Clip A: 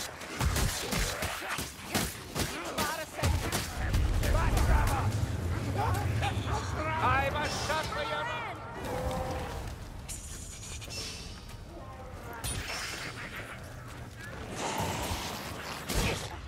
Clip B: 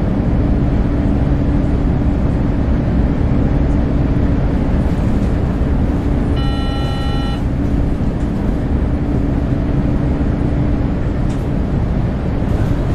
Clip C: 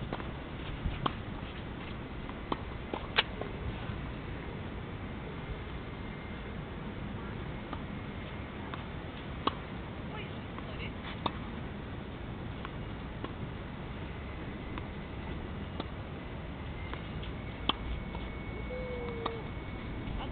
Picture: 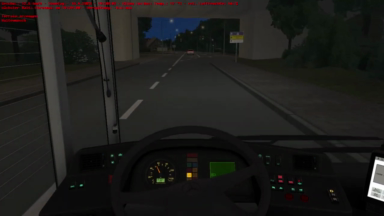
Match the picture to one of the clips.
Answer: B